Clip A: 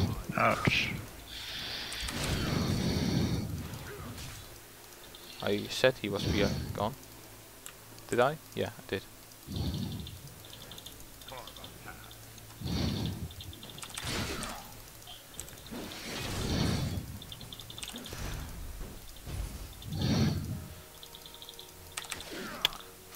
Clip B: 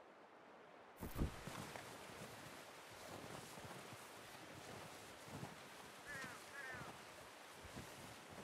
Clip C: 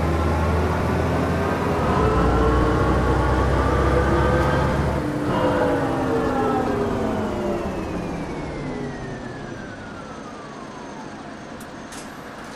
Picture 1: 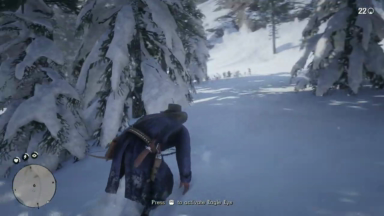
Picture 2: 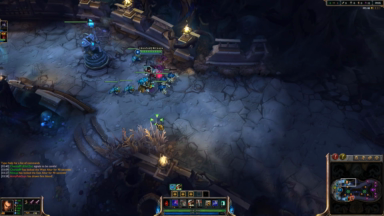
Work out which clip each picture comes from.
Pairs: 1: B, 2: A